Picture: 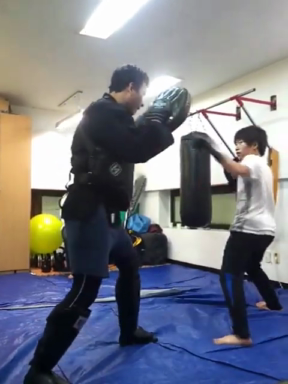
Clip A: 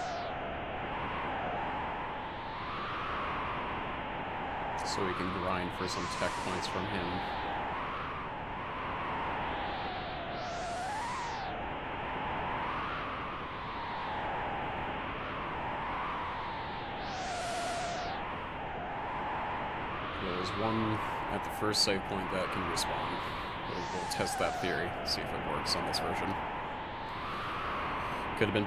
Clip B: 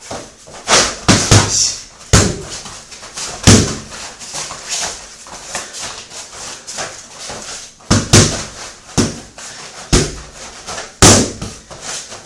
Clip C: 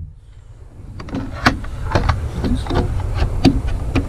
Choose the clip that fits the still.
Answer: B